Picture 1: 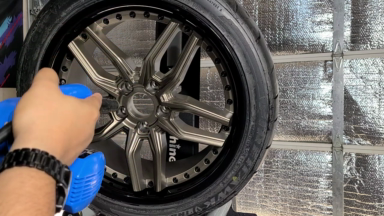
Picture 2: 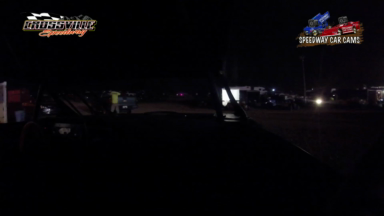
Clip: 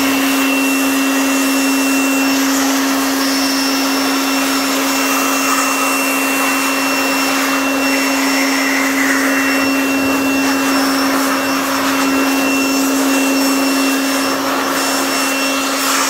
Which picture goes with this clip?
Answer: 1